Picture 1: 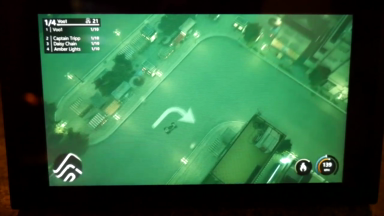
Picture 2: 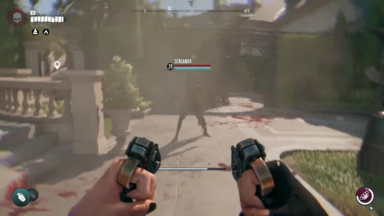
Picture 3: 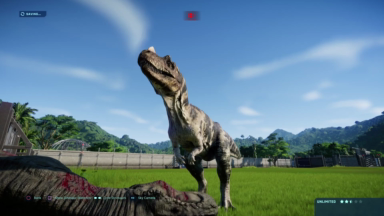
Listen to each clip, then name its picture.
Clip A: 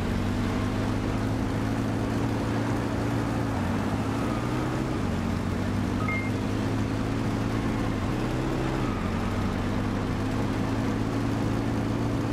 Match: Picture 1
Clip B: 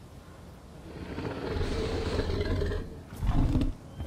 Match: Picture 3